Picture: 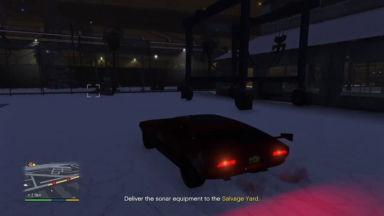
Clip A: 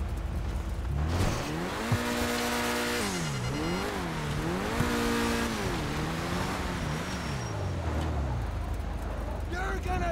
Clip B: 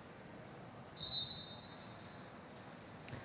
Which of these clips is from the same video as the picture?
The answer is A